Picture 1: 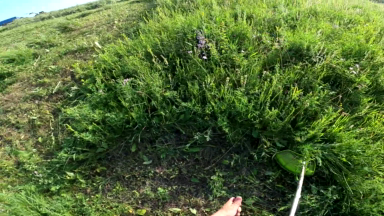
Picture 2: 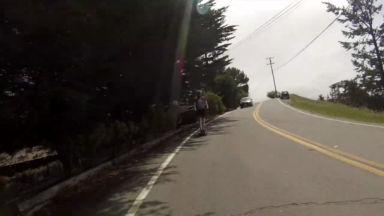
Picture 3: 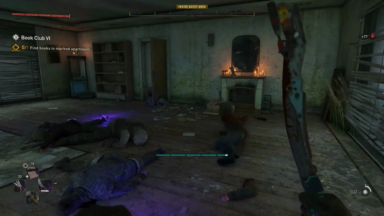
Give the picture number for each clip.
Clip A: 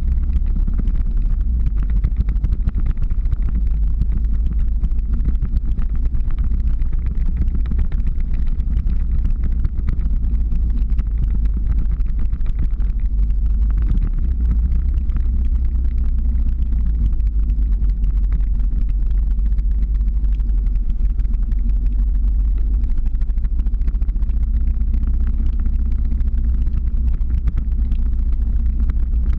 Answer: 2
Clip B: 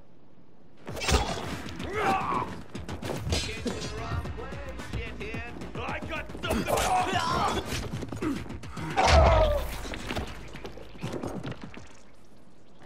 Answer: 3